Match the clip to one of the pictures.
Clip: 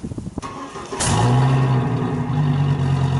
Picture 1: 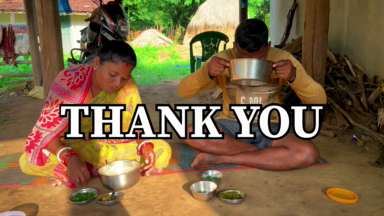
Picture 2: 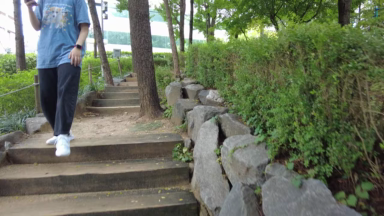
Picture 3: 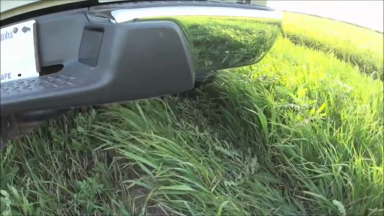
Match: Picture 3